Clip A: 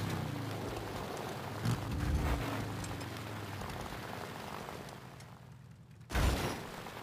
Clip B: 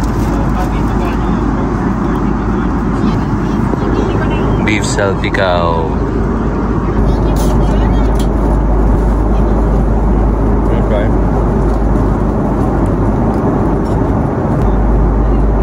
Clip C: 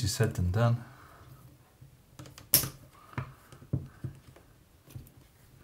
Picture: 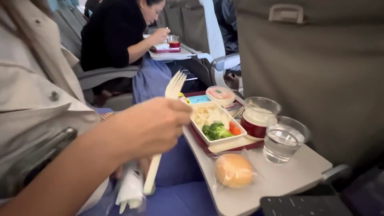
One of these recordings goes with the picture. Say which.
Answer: B